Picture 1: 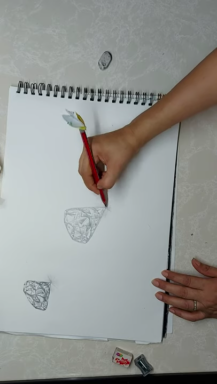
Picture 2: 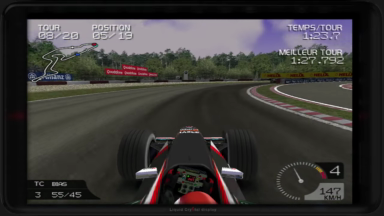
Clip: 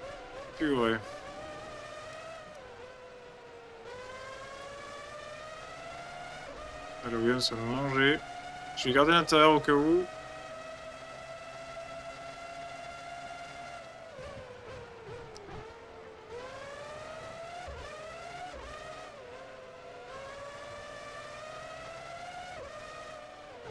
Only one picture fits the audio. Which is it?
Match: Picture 2